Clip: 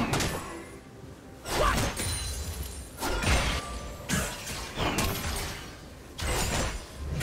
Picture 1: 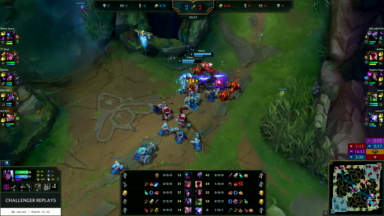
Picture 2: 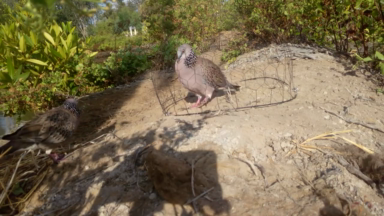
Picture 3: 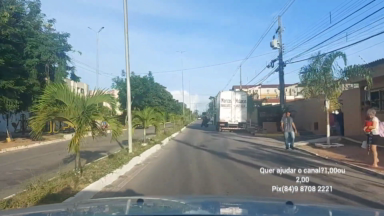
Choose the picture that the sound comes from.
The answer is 1